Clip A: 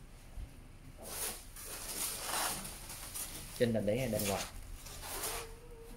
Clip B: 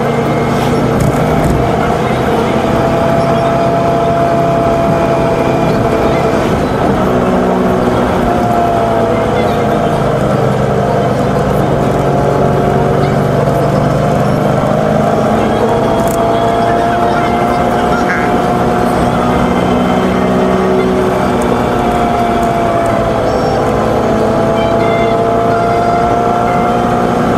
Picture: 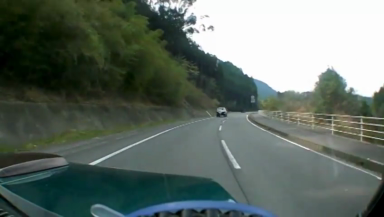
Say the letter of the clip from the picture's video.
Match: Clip B